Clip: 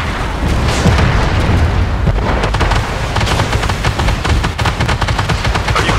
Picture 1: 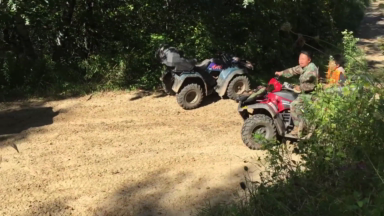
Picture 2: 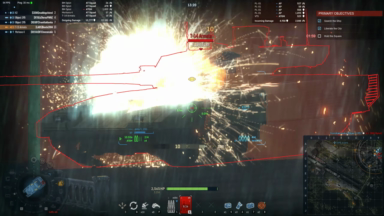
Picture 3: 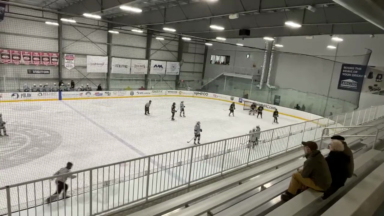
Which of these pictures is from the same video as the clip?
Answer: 2